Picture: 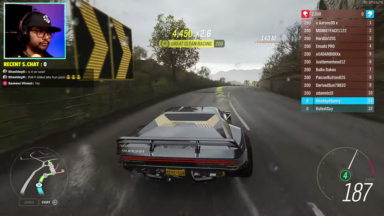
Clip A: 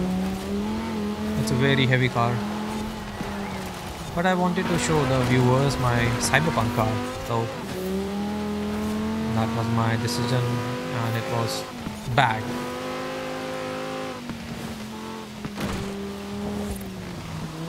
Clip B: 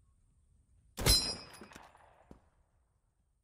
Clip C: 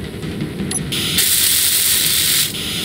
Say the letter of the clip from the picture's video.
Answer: A